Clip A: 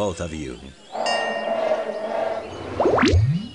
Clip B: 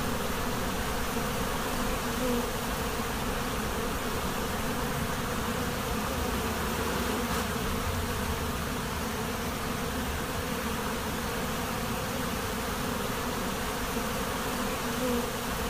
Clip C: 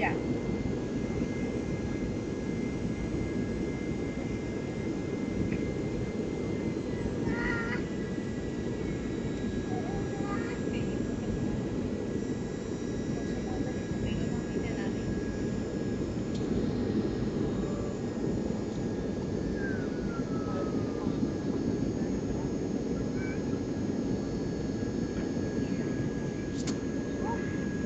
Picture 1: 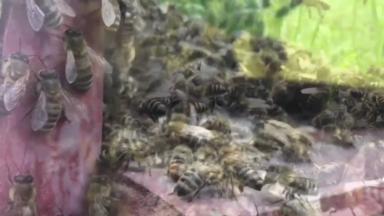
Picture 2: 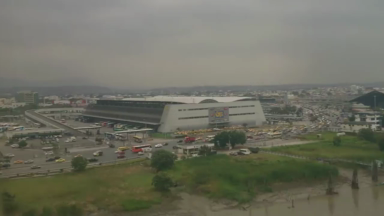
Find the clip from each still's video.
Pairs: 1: B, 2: C